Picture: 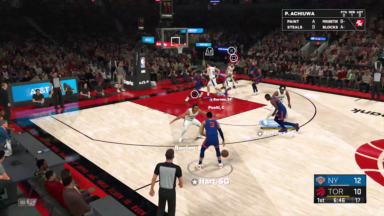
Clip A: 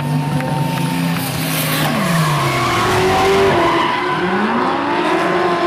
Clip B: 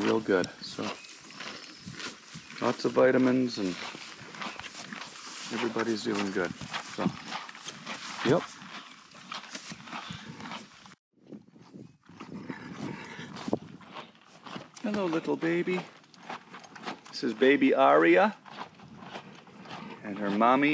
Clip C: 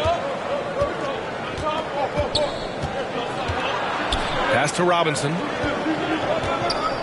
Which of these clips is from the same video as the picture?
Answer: C